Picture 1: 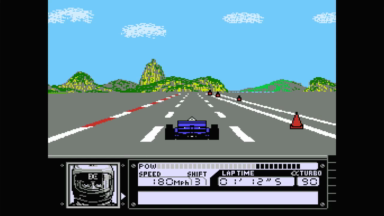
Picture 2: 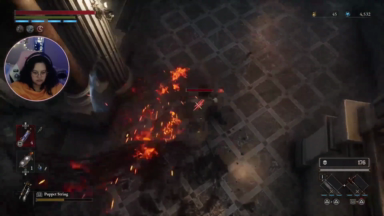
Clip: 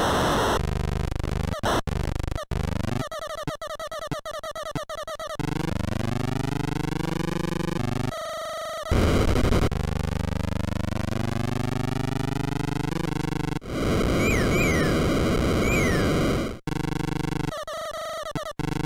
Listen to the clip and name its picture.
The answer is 1